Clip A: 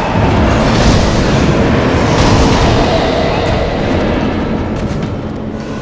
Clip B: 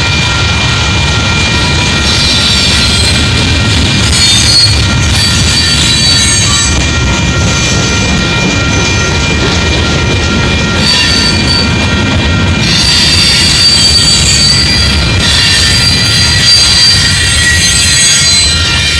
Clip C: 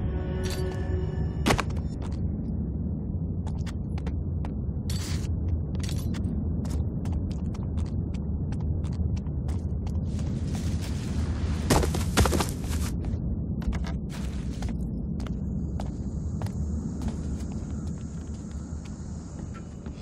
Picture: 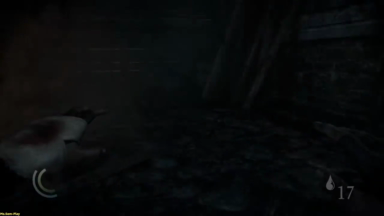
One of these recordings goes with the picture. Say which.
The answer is C